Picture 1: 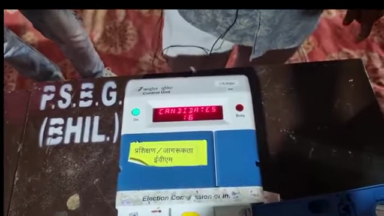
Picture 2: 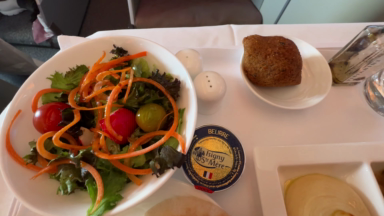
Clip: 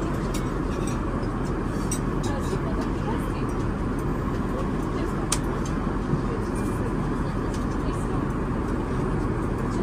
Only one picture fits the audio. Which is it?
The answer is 2